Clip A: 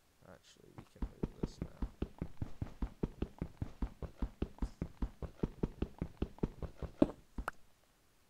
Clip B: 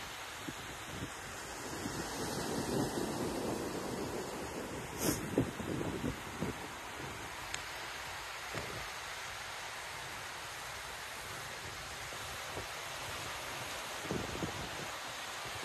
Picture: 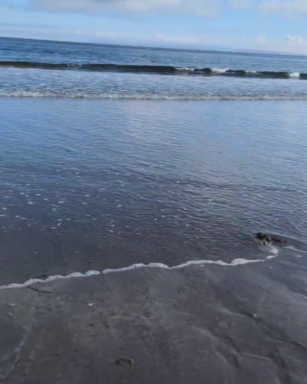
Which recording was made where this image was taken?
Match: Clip B